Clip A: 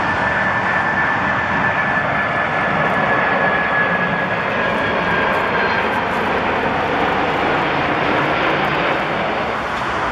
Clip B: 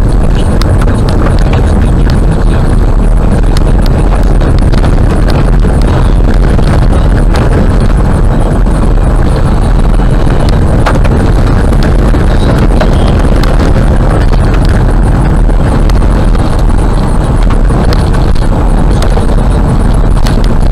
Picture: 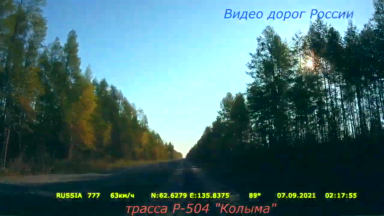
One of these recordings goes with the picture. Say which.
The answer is B